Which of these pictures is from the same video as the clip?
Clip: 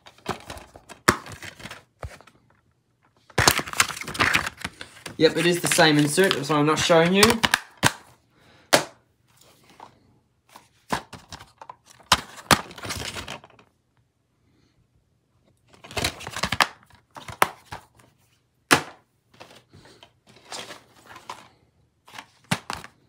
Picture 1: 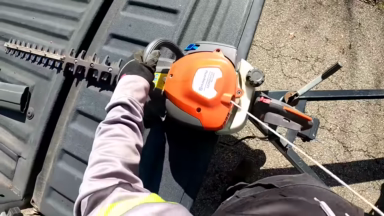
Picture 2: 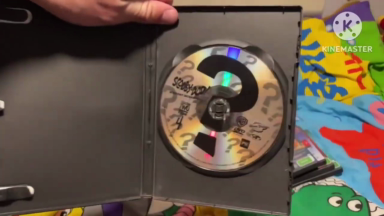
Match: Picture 2